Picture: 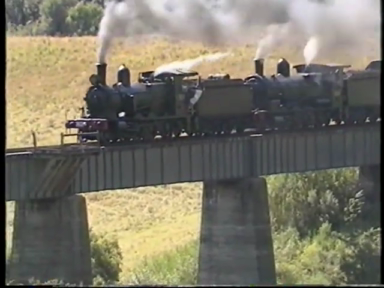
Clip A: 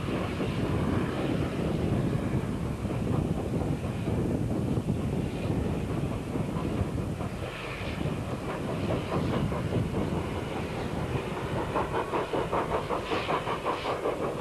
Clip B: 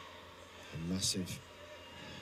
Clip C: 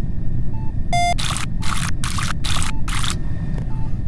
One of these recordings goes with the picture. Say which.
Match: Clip A